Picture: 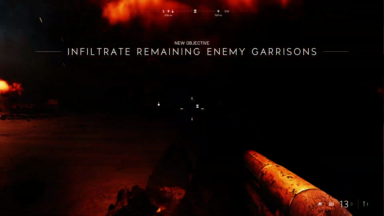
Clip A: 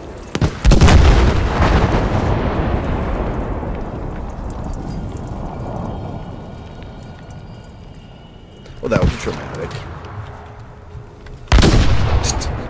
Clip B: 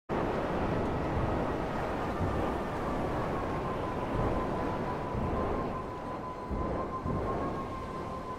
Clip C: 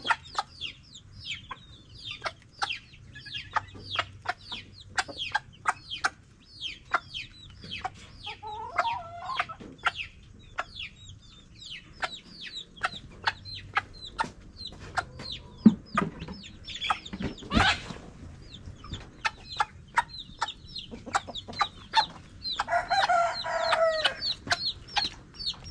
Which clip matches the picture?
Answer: A